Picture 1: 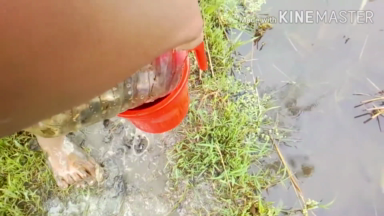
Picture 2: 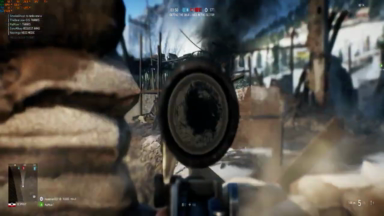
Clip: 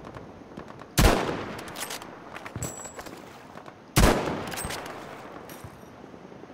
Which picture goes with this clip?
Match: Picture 2